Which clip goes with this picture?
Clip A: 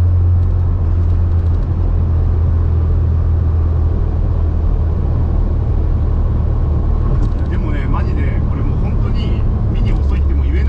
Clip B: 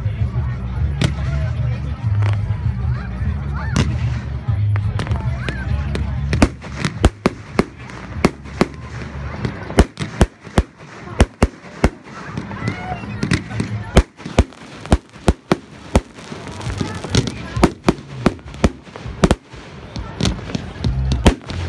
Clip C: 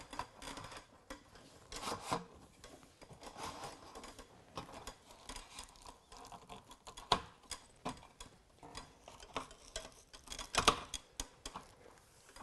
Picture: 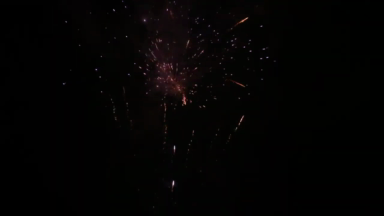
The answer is B